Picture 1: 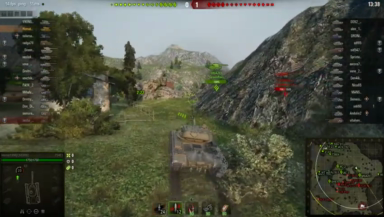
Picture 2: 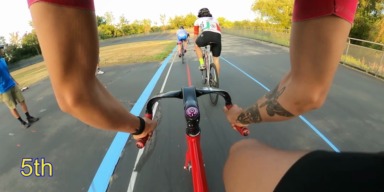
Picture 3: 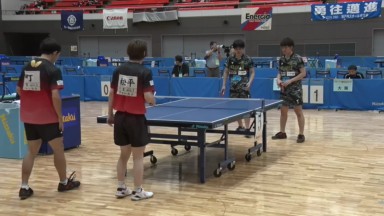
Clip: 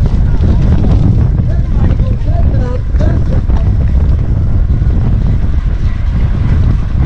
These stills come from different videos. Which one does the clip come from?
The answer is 2